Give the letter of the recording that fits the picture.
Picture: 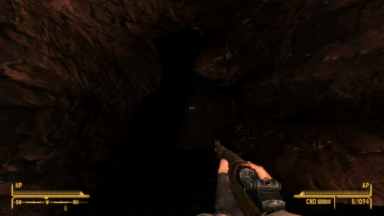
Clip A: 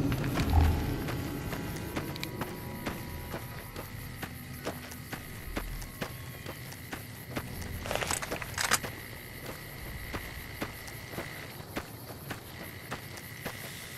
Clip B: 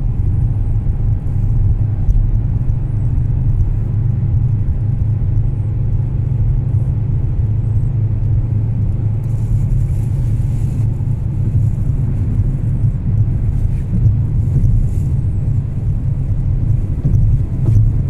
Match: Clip A